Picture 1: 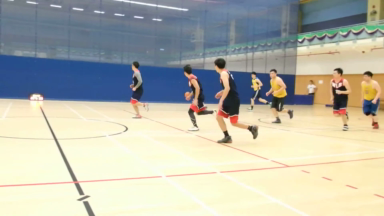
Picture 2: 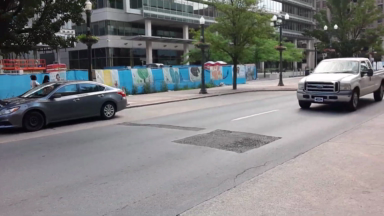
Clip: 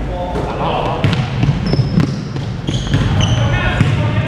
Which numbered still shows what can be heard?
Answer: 1